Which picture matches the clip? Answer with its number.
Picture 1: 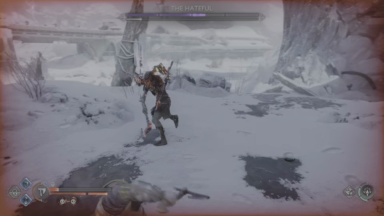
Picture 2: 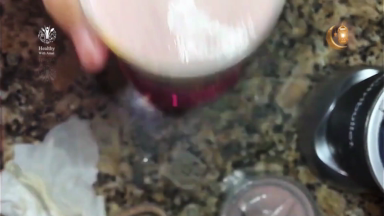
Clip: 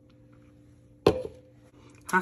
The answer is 2